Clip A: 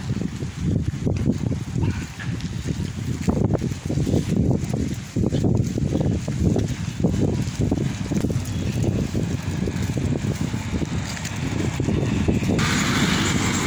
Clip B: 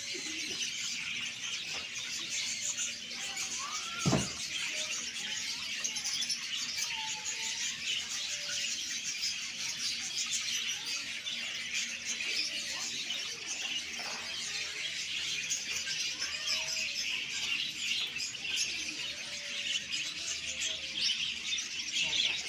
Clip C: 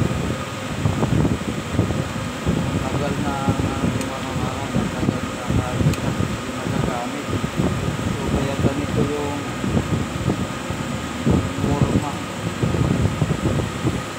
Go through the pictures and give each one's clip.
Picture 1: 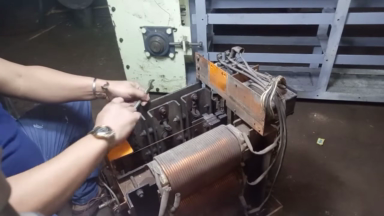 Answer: C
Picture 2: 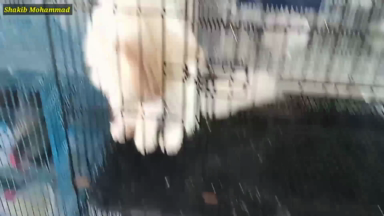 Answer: B